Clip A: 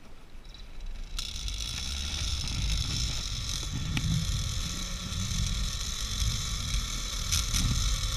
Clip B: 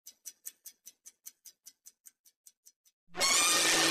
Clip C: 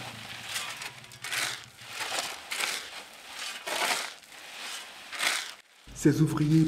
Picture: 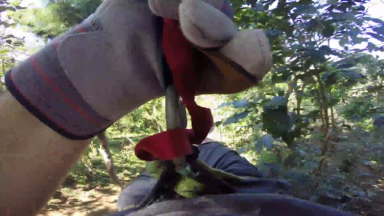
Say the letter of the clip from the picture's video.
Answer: A